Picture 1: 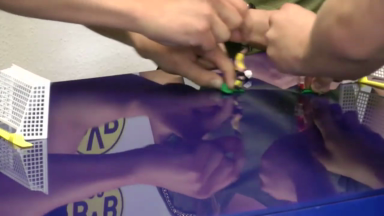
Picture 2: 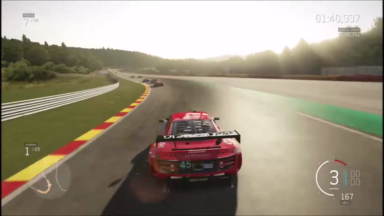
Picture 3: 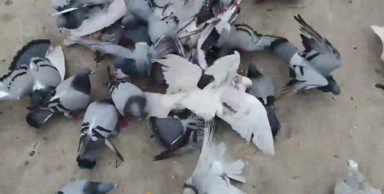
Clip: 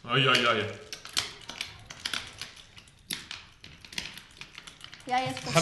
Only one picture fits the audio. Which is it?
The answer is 1